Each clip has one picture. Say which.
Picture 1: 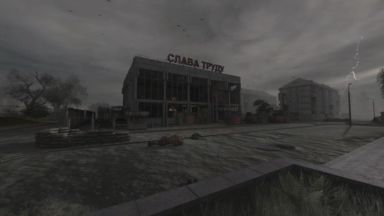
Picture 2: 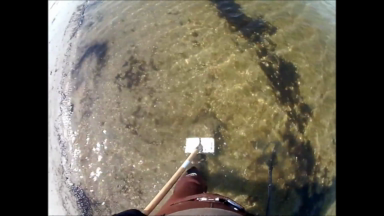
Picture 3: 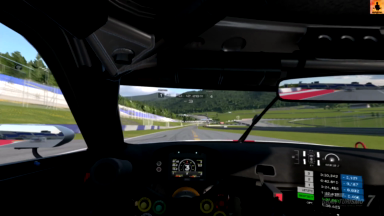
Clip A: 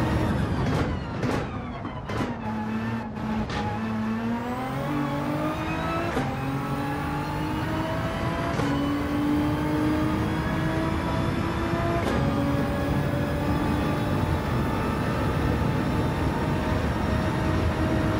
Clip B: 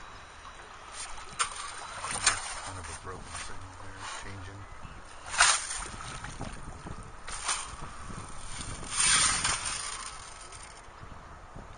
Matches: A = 3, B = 2